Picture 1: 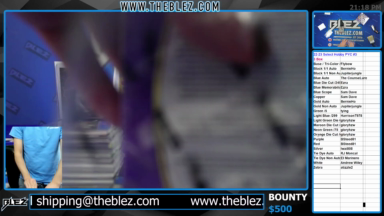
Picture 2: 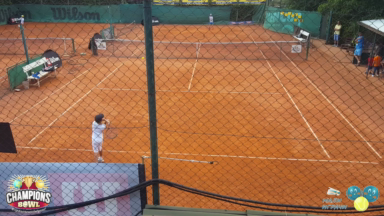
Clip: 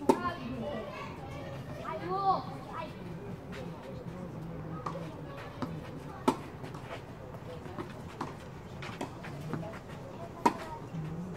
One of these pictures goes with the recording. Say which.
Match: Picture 2